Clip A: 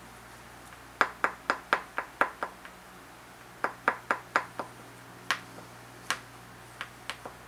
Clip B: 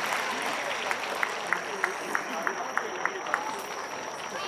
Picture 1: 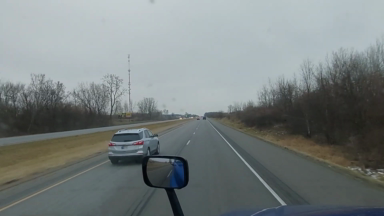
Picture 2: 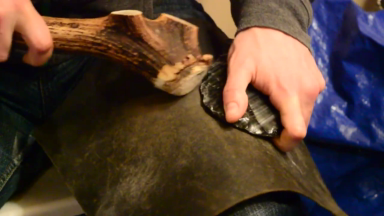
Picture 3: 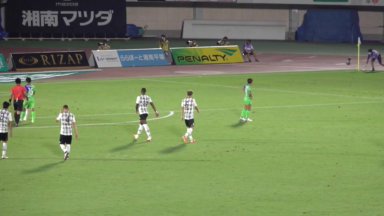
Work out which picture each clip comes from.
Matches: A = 2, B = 3